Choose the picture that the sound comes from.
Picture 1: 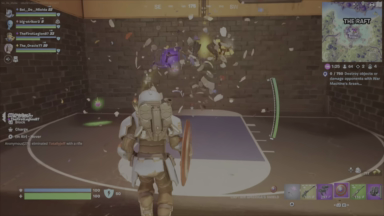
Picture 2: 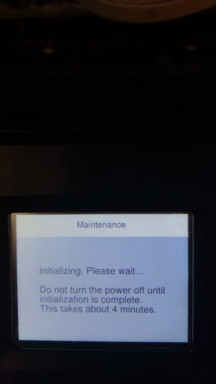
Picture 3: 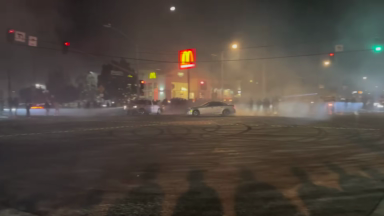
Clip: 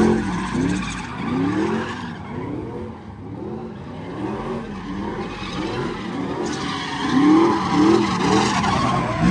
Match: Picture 3